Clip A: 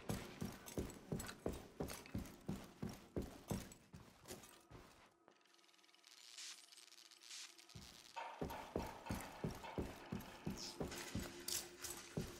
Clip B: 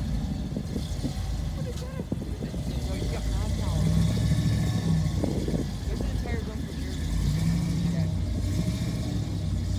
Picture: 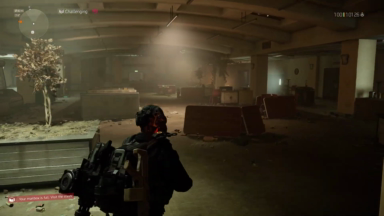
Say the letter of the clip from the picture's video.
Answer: A